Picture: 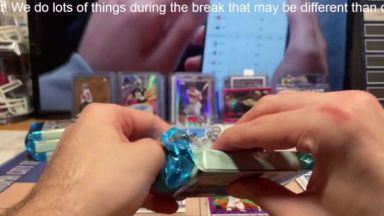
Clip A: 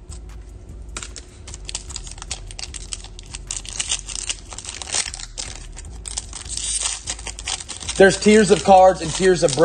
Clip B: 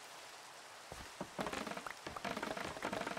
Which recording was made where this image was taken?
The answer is A